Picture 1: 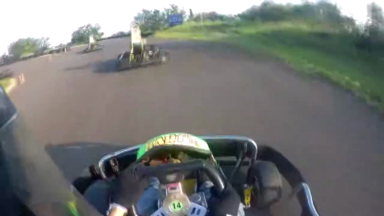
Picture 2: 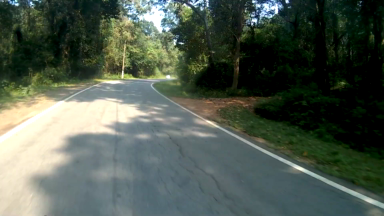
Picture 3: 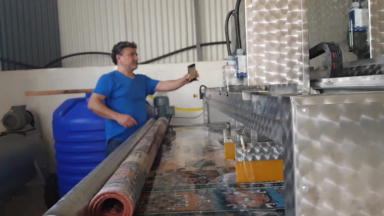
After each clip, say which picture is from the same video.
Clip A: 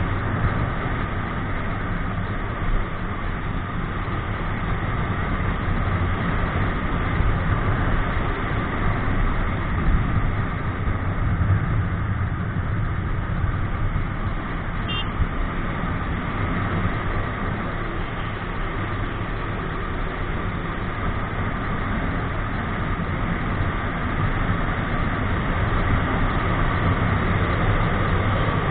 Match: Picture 2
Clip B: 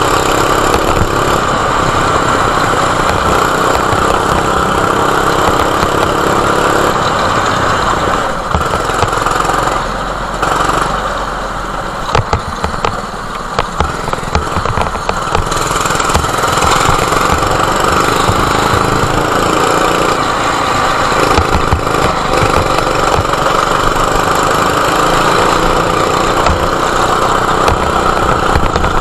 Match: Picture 1